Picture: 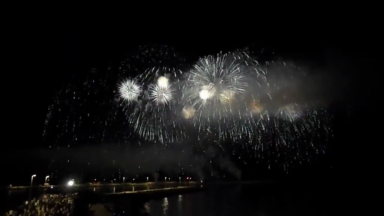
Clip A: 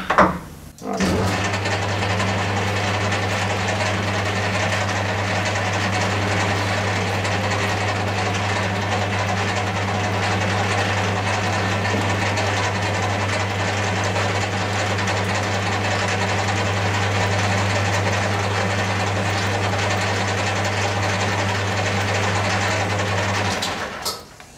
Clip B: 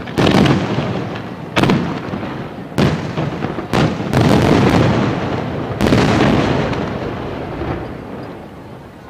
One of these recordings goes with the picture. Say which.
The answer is B